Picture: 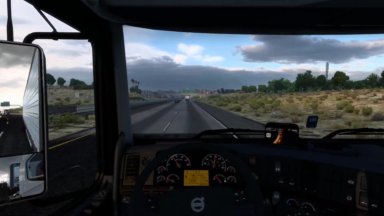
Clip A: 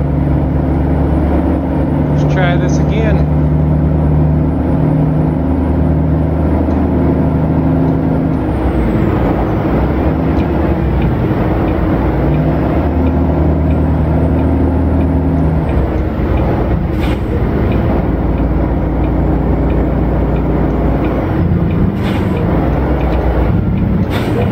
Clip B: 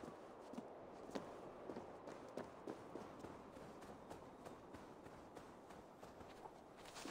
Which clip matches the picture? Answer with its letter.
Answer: A